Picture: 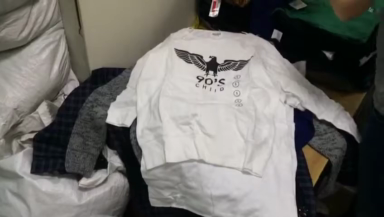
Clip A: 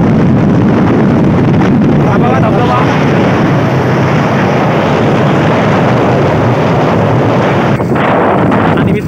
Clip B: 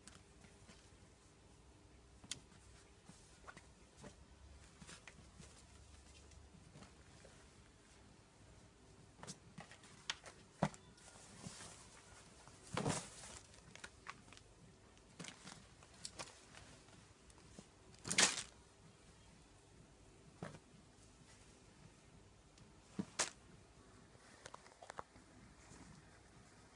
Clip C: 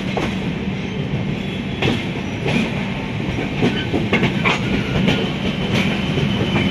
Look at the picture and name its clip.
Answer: B